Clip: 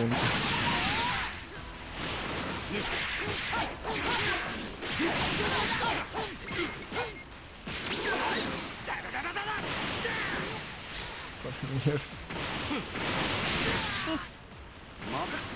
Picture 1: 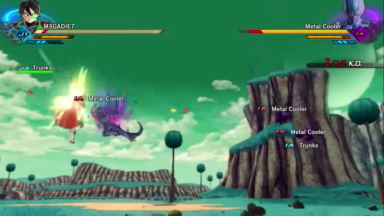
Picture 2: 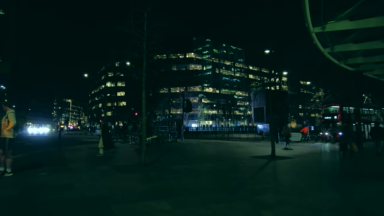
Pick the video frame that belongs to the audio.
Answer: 1